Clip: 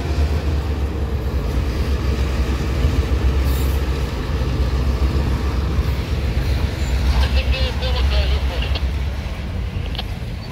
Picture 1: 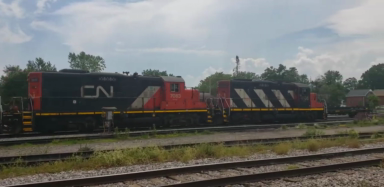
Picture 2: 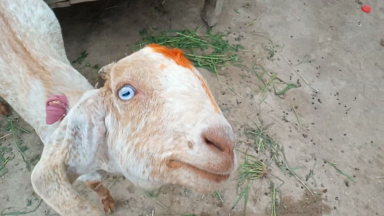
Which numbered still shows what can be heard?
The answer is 1